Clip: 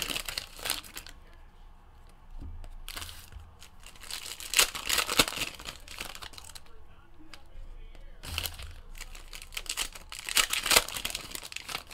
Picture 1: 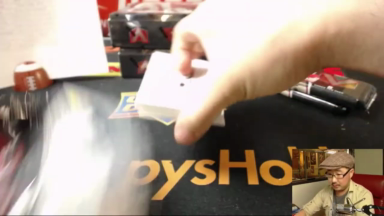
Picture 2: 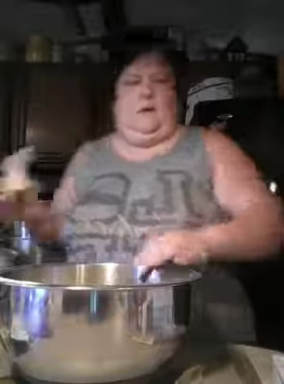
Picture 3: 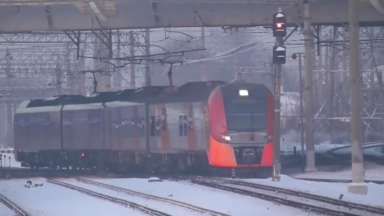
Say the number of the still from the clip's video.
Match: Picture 1